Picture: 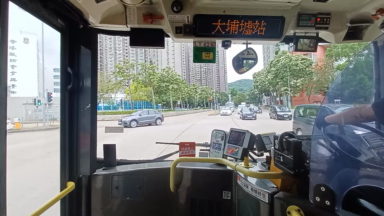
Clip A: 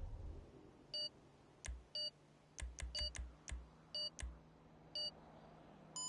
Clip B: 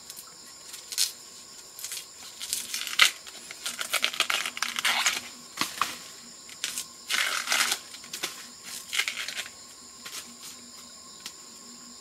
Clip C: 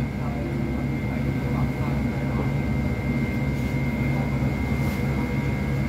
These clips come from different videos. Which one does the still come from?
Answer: C